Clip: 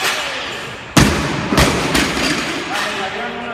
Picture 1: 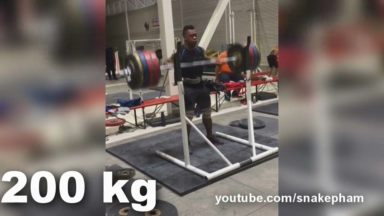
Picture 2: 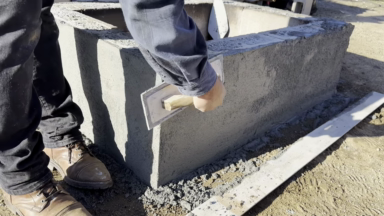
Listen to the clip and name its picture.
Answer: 1